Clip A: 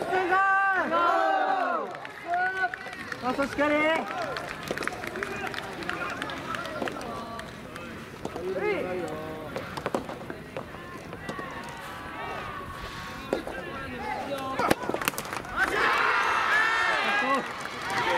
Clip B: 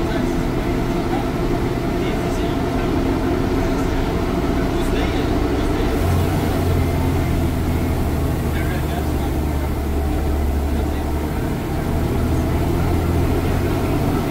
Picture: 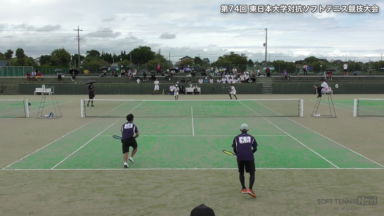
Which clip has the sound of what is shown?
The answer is A